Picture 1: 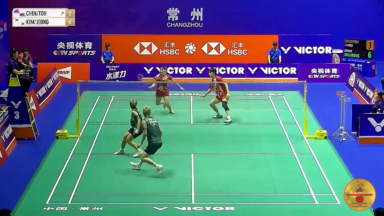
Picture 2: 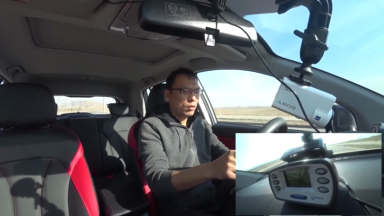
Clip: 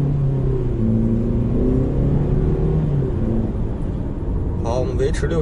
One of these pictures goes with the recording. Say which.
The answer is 2